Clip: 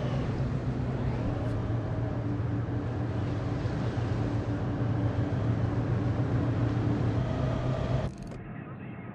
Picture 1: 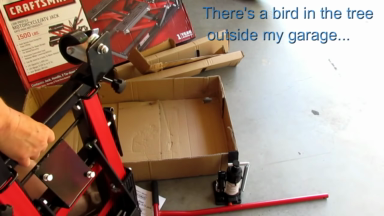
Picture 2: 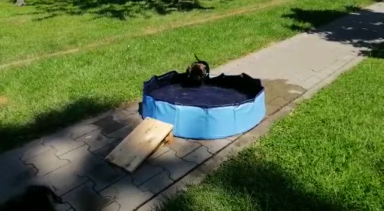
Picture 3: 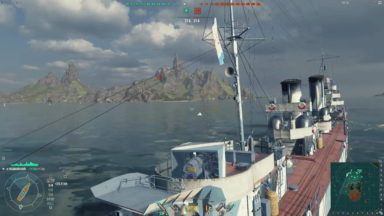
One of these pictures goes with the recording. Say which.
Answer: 3